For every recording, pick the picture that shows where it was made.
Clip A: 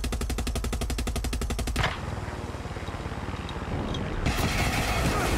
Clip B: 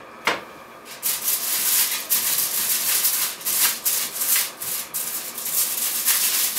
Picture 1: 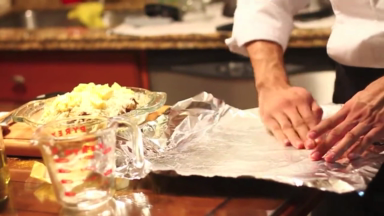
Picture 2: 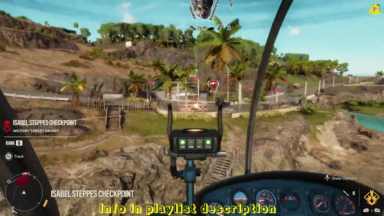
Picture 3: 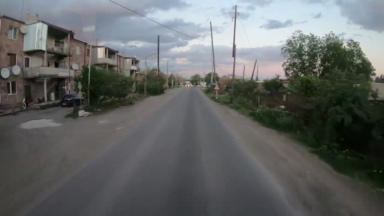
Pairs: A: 2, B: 1